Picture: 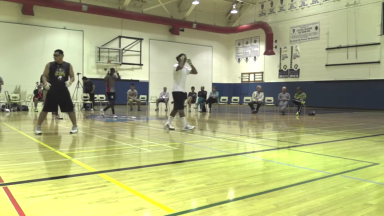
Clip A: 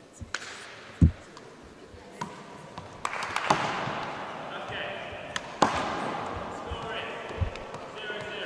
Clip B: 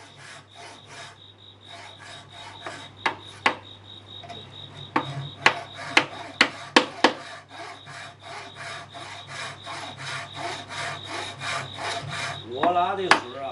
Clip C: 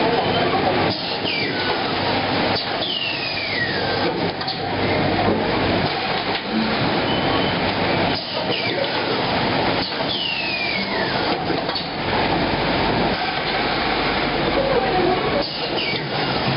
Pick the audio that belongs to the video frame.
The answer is A